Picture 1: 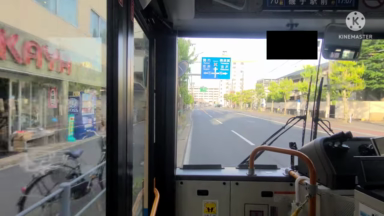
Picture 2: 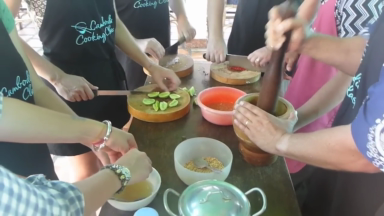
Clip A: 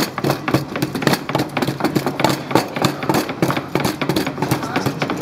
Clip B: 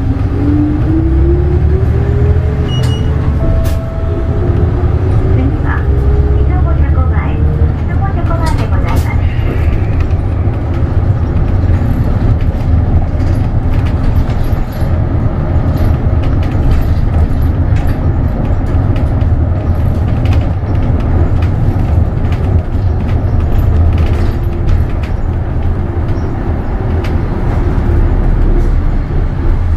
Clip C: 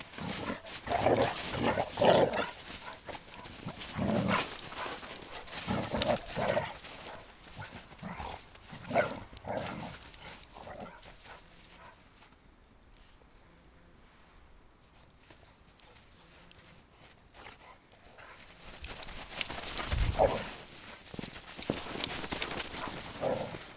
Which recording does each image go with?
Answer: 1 B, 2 A